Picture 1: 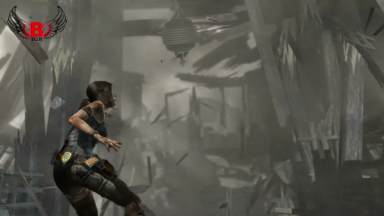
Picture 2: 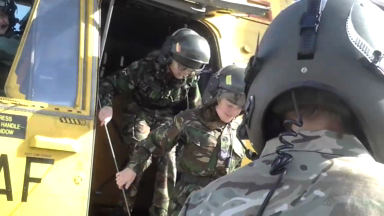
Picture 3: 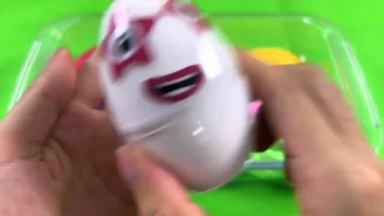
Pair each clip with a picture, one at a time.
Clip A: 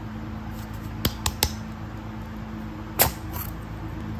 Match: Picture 3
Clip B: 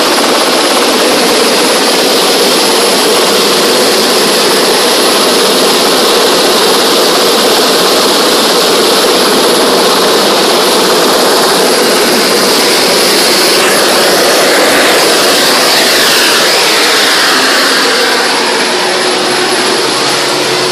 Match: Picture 2